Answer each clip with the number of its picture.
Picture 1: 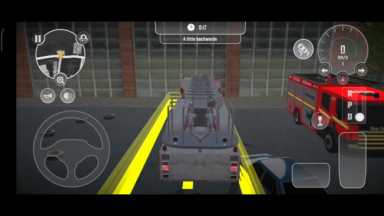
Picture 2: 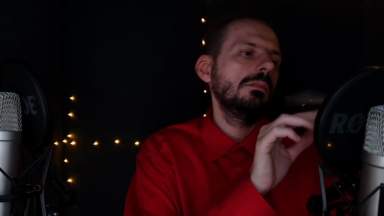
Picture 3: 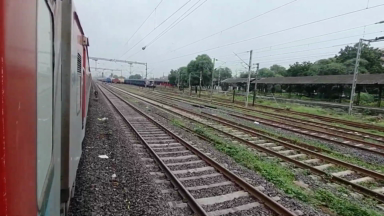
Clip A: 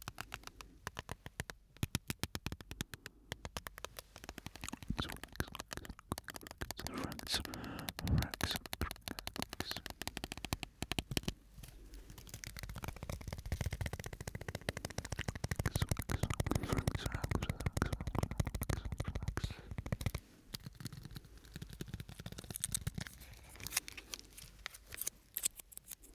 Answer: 2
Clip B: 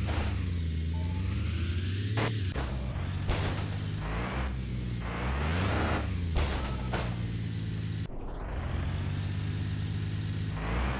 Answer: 1